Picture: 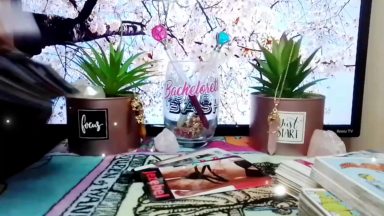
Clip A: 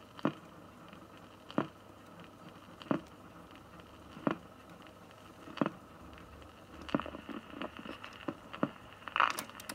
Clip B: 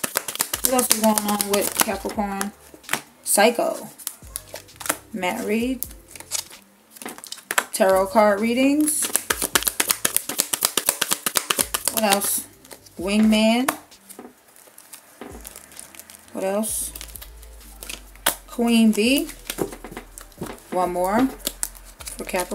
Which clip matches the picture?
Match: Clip B